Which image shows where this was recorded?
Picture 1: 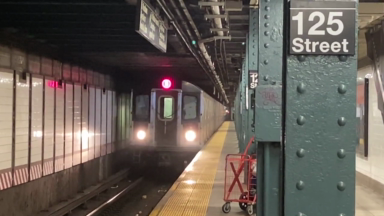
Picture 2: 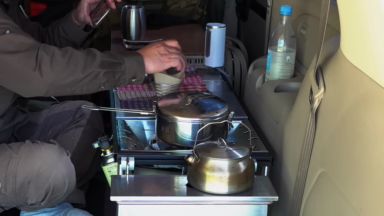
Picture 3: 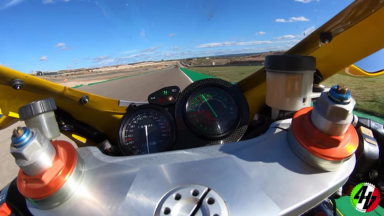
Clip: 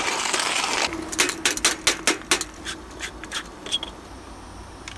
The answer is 2